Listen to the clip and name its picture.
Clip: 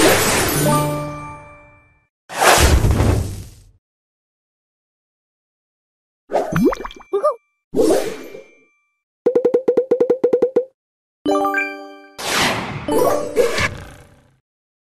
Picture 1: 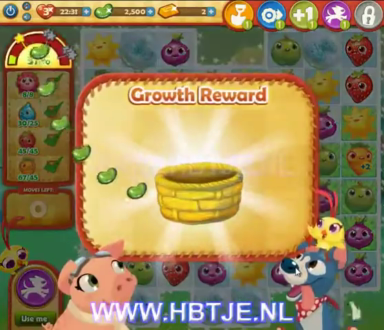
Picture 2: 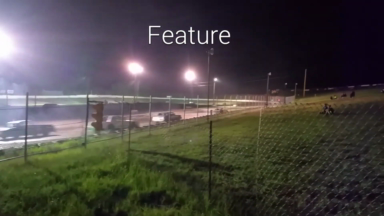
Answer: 1